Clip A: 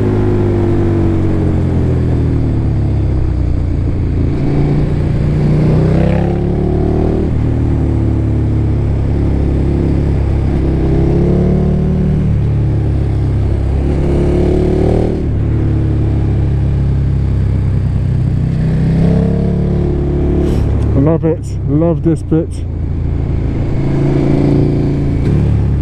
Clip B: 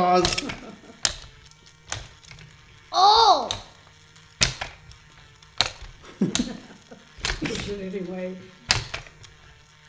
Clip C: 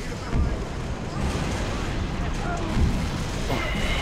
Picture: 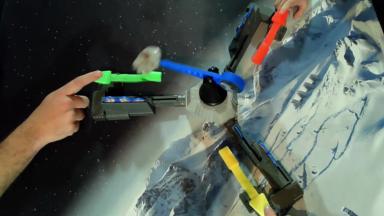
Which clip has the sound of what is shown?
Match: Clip B